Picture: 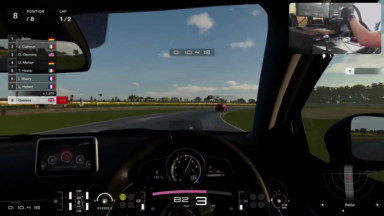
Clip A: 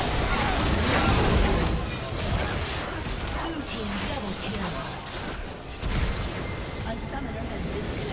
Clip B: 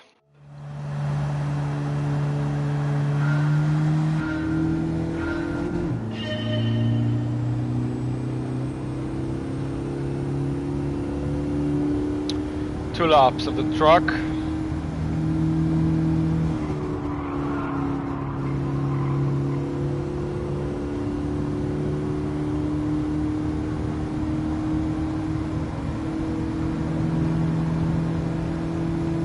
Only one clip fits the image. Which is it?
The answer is B